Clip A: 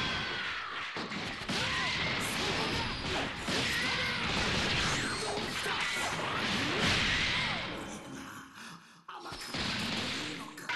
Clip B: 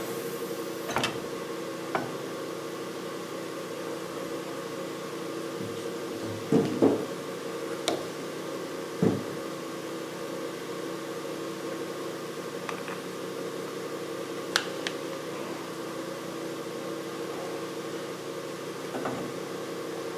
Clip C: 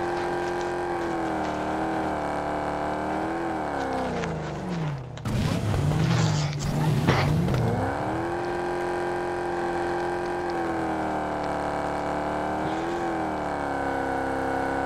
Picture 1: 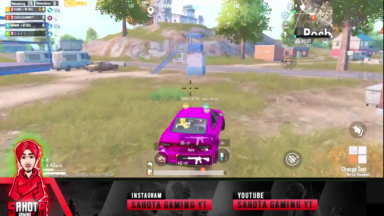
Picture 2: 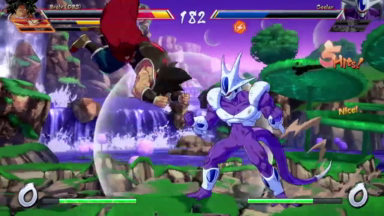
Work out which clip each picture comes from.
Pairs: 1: C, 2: A